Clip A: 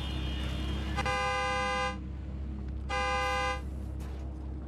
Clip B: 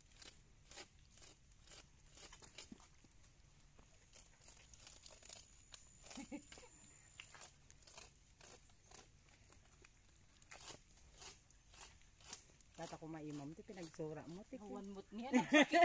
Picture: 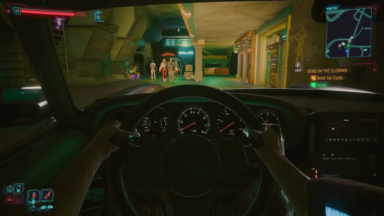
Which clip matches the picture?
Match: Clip A